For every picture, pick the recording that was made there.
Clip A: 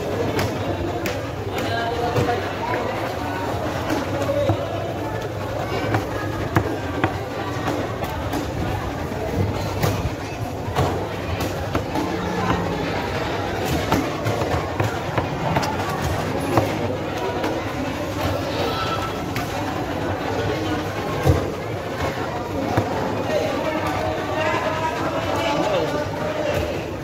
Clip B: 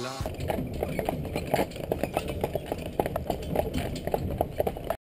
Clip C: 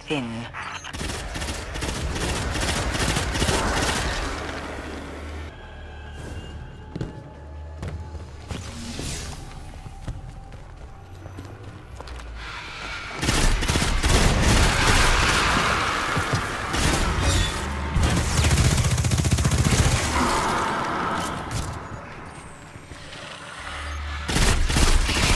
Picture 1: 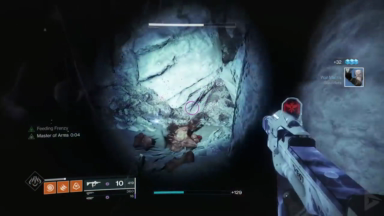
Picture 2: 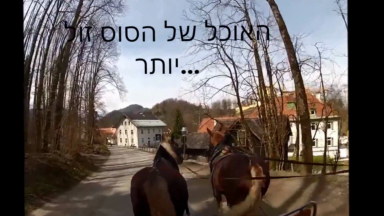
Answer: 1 C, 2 B